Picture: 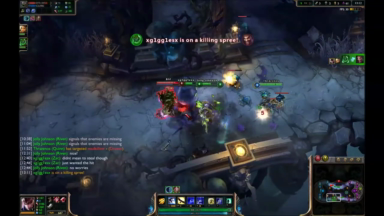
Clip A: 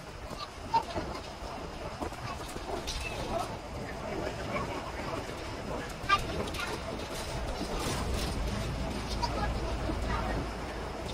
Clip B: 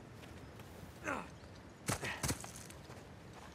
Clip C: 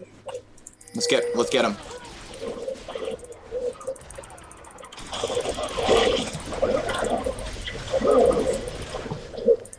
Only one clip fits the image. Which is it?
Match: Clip C